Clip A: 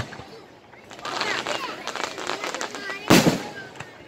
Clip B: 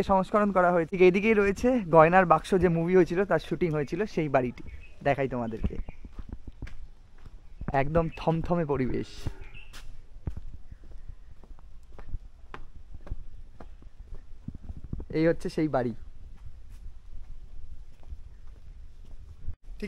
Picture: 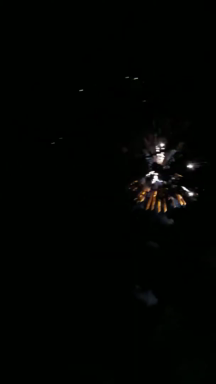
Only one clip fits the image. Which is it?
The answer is A